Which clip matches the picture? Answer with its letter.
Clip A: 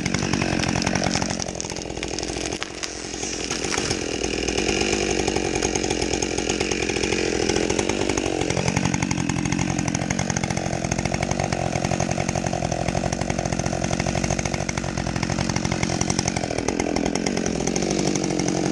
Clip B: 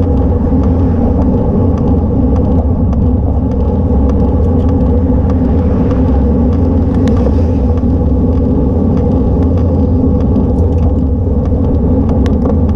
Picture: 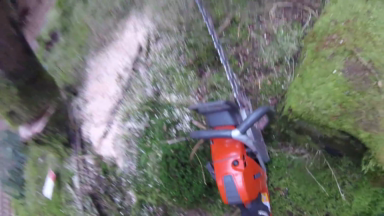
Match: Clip A